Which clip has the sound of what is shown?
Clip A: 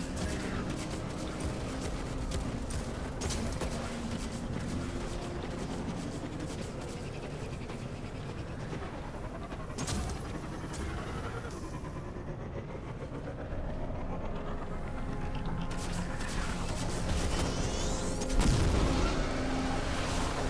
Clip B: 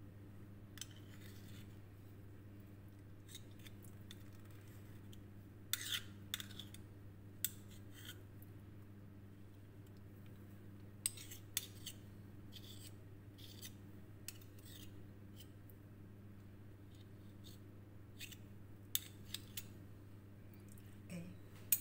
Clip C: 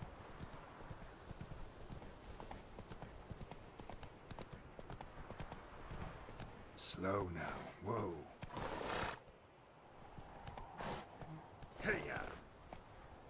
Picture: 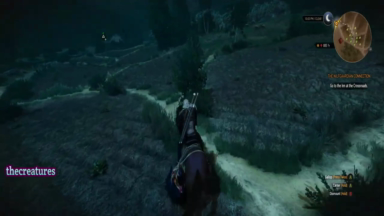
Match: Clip C